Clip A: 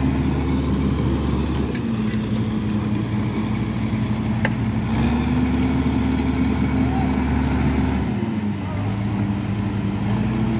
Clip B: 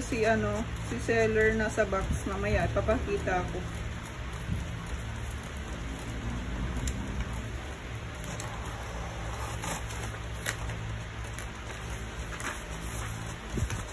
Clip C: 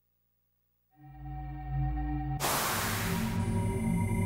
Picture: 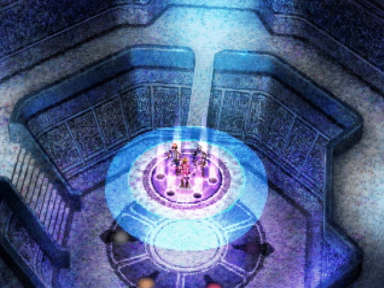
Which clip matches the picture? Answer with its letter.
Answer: C